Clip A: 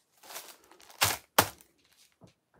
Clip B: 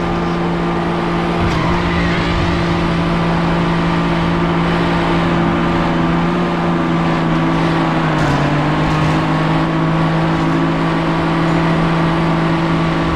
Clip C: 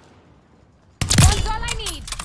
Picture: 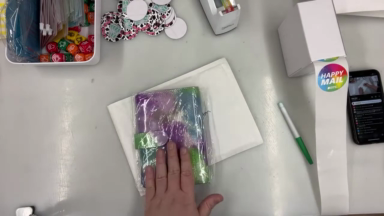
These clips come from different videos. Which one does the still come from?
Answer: A